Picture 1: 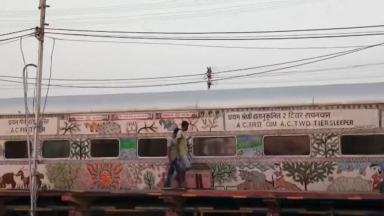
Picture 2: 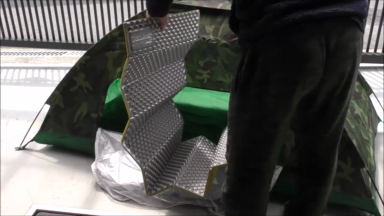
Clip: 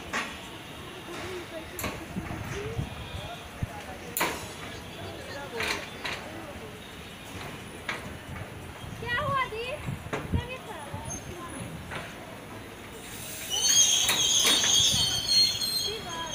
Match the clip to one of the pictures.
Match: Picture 1